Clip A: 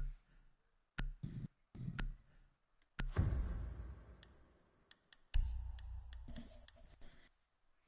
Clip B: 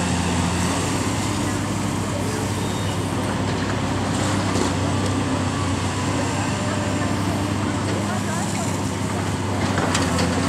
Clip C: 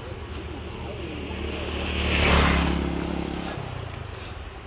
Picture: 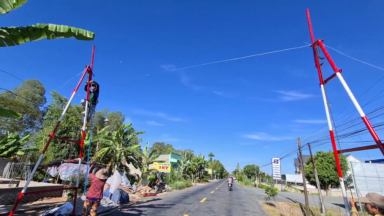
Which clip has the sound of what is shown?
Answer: C